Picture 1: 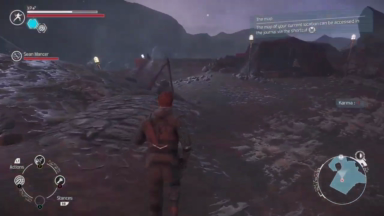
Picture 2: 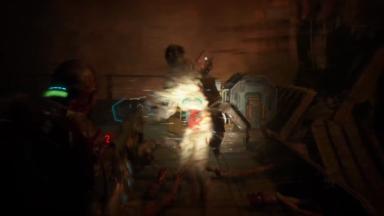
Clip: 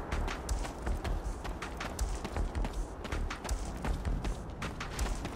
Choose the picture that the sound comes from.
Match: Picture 1